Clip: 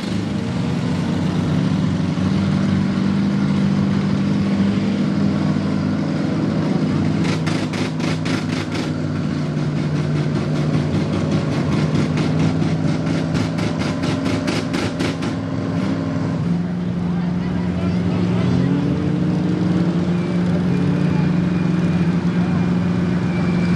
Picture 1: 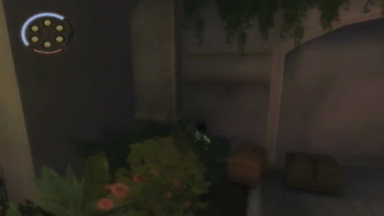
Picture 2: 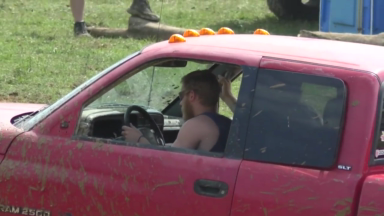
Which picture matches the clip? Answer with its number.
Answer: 2